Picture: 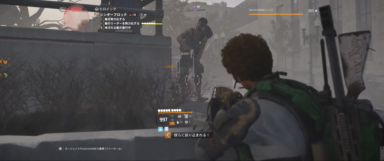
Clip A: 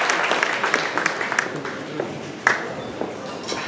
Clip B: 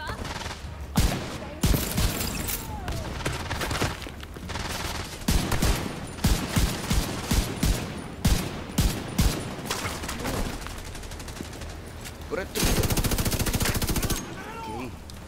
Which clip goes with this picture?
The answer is B